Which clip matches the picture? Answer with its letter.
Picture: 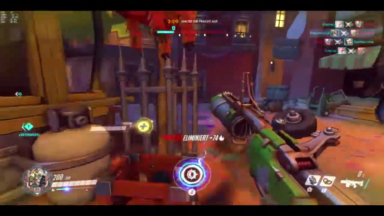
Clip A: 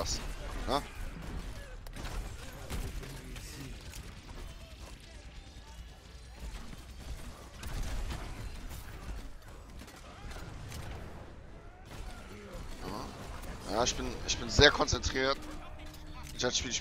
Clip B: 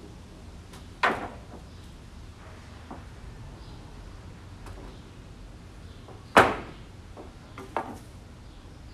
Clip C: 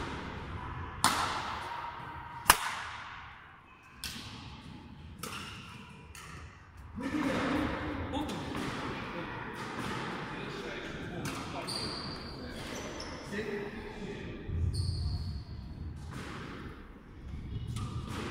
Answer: A